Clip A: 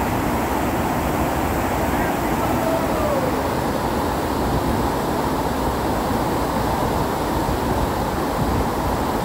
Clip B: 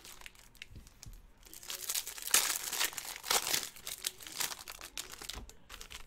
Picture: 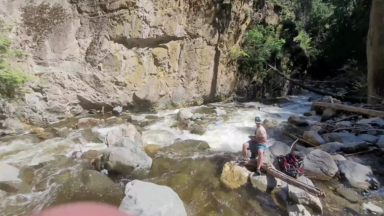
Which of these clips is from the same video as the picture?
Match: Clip A